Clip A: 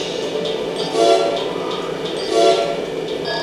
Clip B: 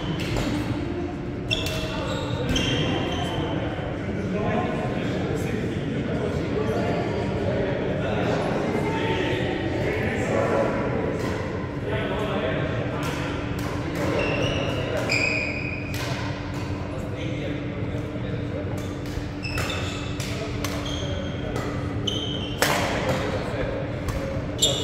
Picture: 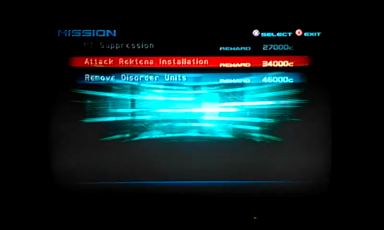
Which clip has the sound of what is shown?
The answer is A